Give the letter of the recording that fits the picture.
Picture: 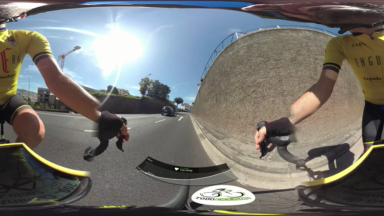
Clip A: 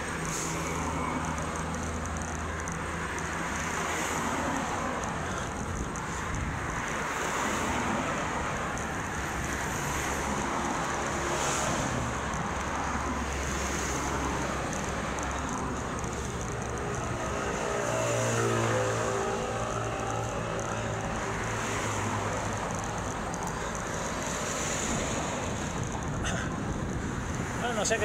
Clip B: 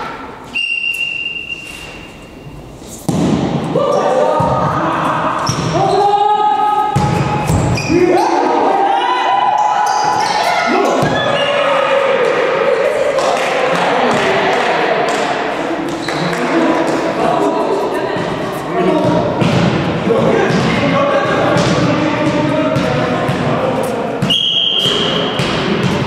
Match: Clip A